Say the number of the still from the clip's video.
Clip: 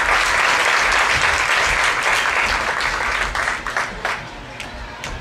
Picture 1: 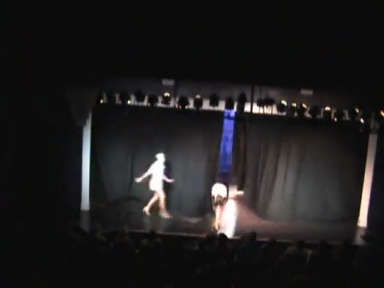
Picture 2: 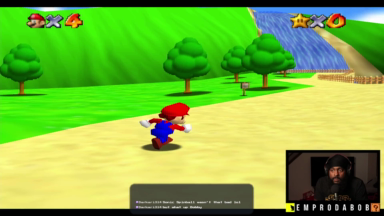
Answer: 1